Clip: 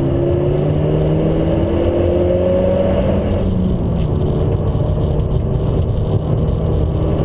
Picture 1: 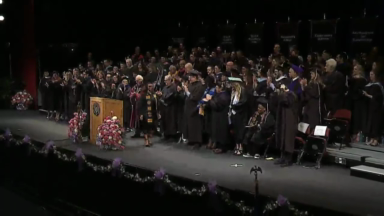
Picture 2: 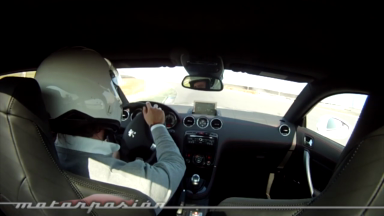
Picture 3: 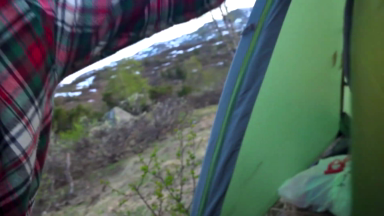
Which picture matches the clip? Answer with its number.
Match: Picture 2